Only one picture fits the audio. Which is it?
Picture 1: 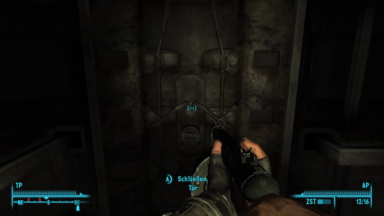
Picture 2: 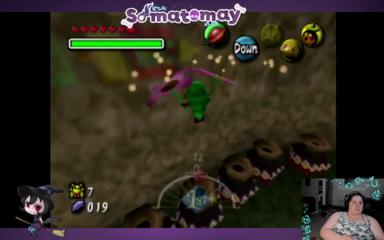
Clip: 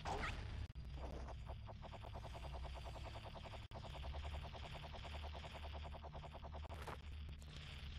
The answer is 2